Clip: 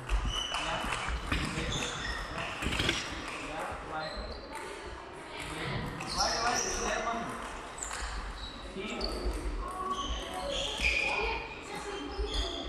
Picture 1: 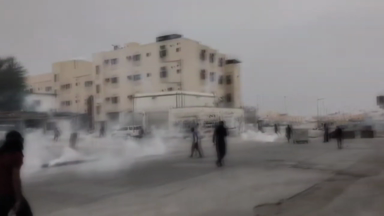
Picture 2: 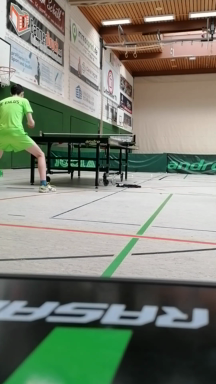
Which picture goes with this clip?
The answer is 2